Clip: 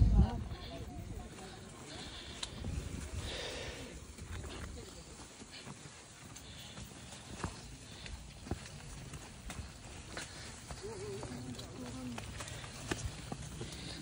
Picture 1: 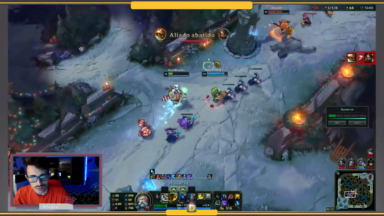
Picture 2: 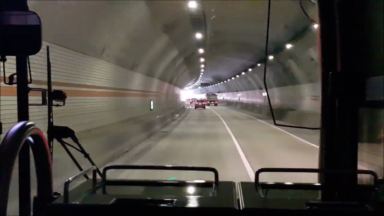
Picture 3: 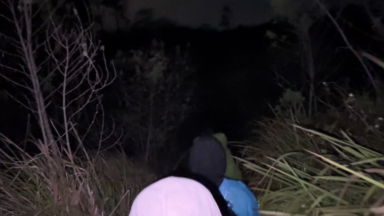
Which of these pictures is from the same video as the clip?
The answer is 3